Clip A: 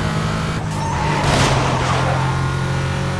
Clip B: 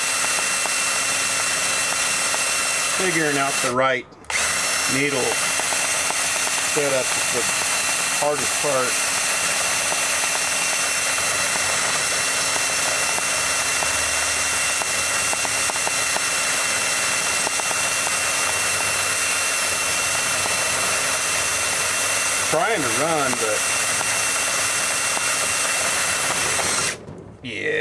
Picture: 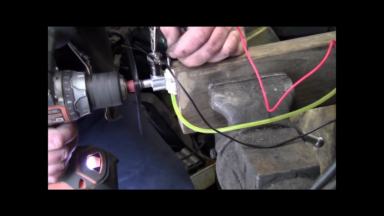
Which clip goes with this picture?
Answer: B